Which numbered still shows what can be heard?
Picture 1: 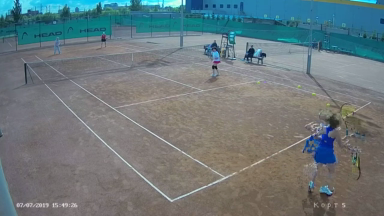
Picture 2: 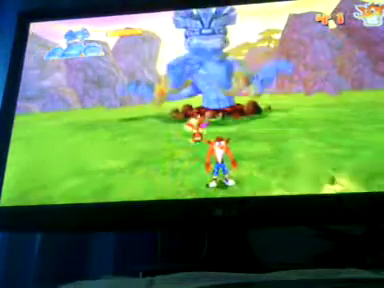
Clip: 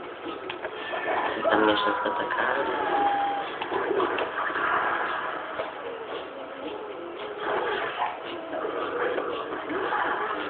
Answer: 2